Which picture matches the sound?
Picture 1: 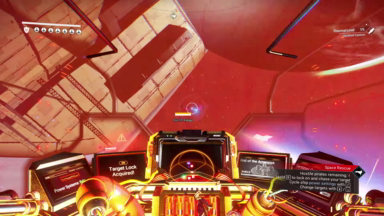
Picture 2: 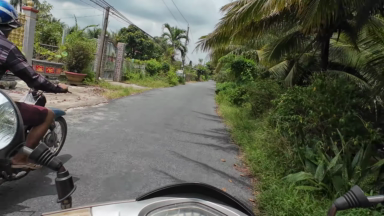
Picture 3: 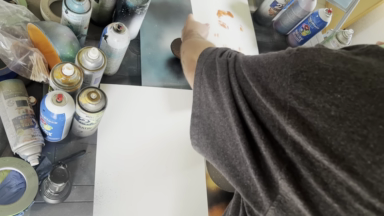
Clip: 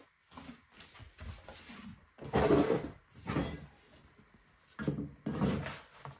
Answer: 3